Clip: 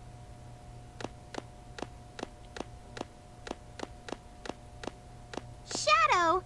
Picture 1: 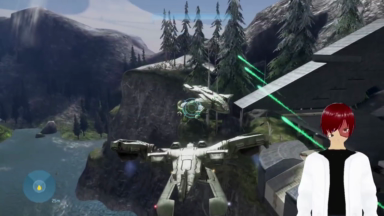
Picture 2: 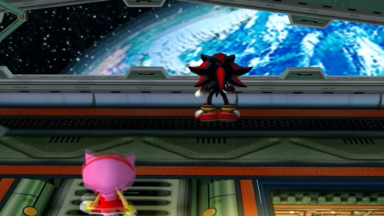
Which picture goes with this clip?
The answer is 2